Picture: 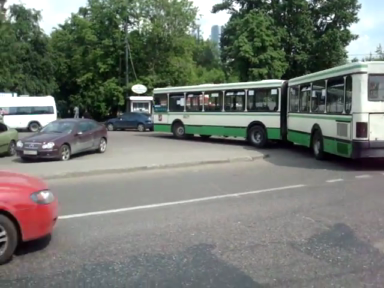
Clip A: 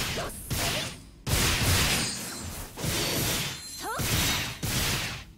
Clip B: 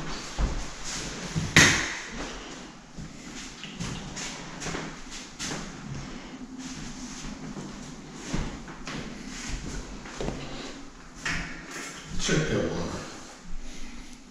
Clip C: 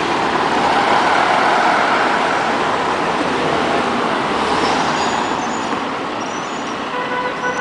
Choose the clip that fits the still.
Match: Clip C